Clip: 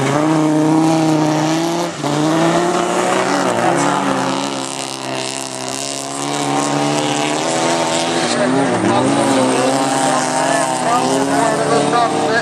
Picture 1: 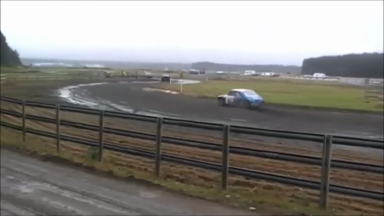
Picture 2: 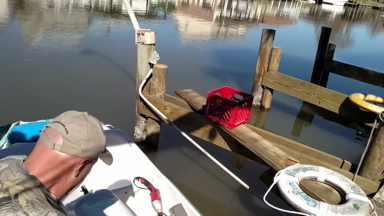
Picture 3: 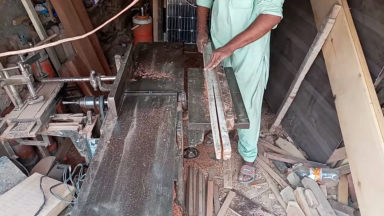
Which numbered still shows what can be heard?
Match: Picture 1